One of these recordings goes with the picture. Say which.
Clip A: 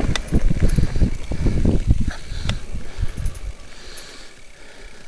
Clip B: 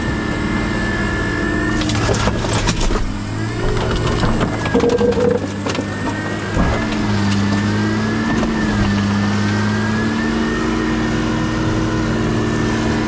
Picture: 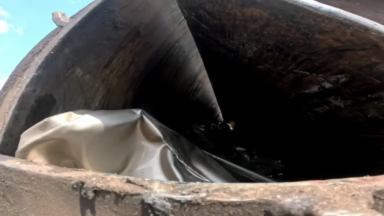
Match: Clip B